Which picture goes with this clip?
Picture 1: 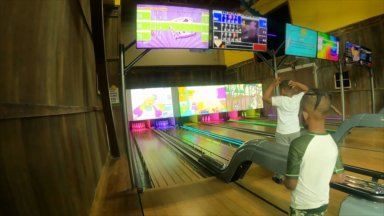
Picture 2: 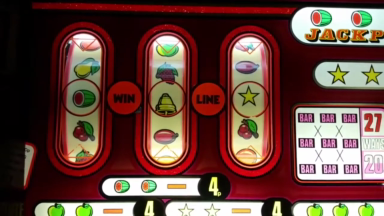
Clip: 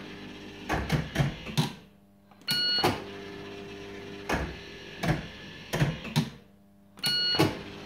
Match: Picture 2